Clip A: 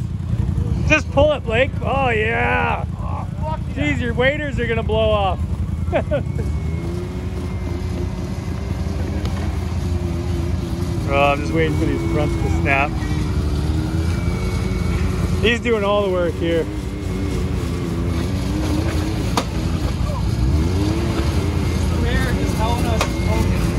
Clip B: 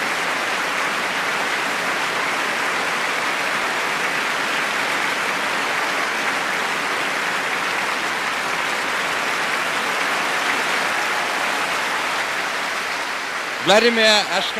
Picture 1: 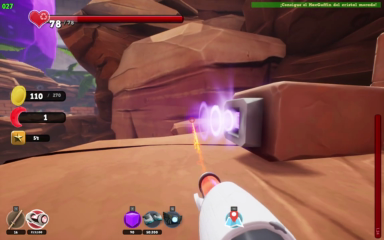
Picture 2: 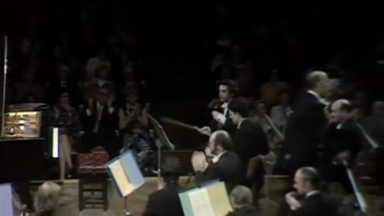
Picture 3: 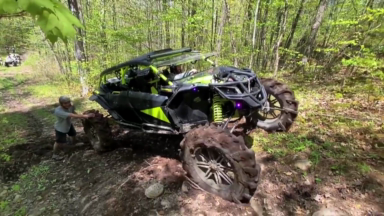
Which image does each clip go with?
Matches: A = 3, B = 2